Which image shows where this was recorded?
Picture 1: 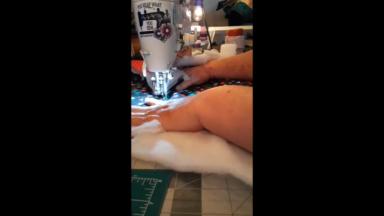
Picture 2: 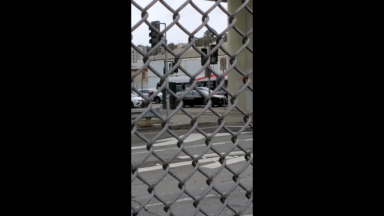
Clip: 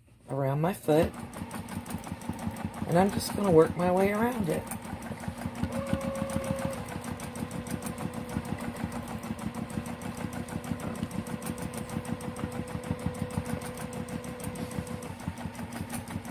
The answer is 1